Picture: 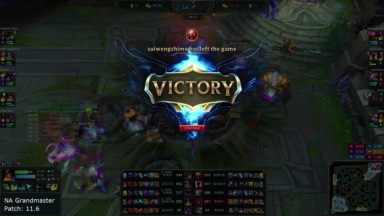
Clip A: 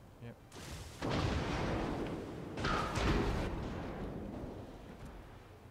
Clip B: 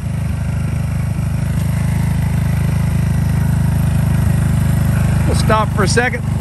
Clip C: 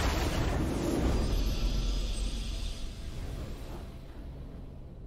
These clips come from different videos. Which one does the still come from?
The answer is C